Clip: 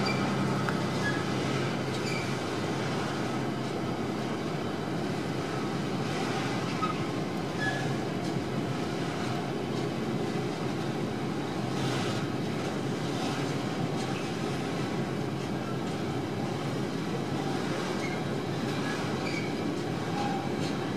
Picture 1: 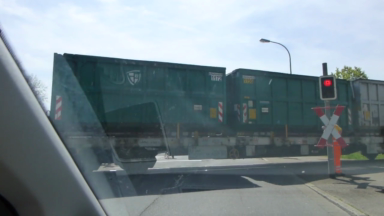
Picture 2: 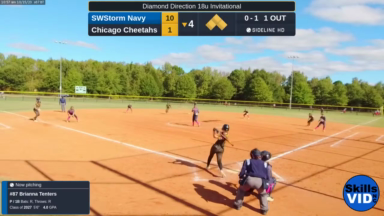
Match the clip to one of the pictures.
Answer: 1